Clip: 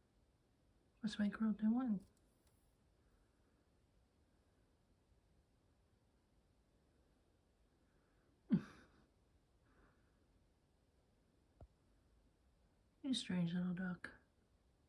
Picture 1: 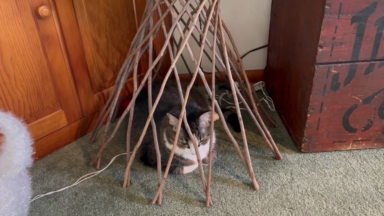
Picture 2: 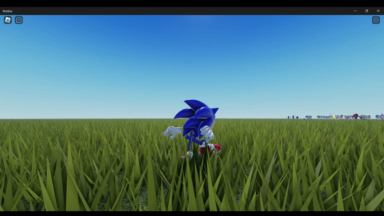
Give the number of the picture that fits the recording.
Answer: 1